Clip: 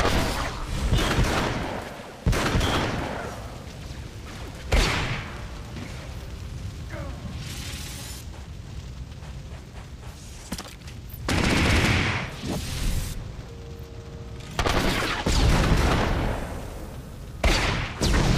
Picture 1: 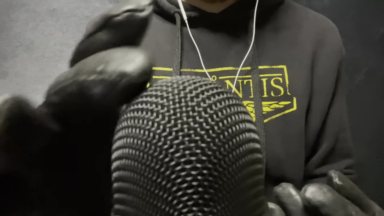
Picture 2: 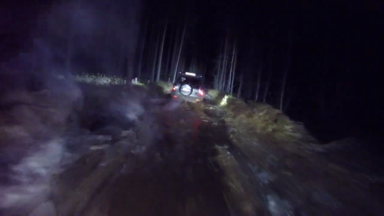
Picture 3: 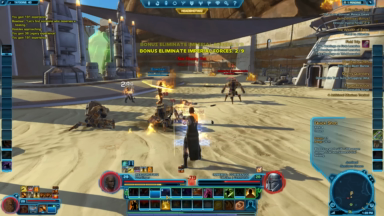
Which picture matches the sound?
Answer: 3